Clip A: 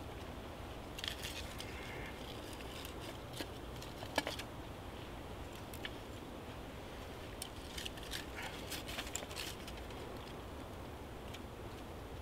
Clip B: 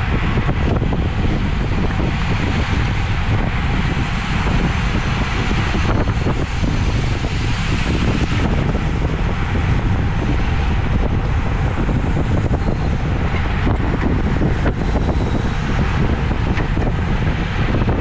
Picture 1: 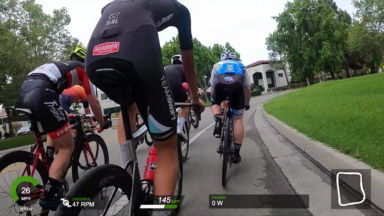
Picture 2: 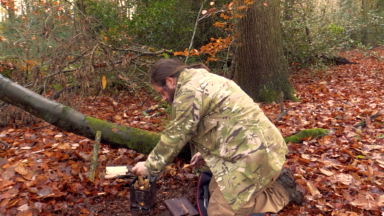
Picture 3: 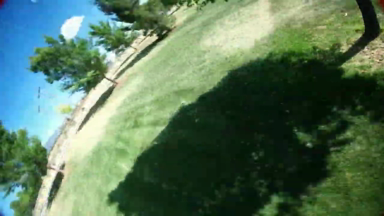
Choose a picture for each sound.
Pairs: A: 2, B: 1